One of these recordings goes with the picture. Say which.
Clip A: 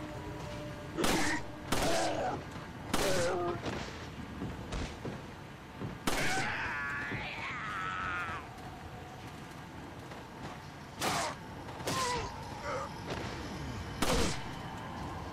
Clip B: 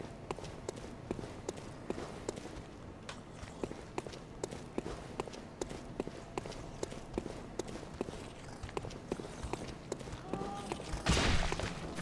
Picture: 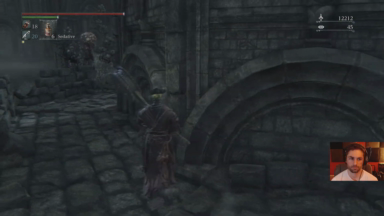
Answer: B